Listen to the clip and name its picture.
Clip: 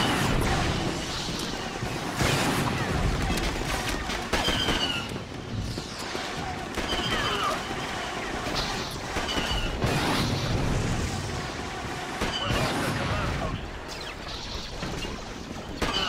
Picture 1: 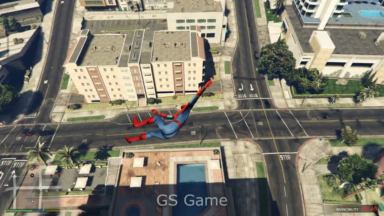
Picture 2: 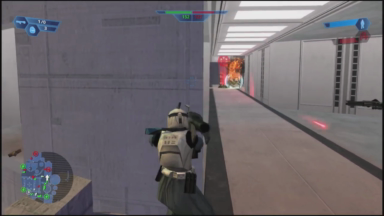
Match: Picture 2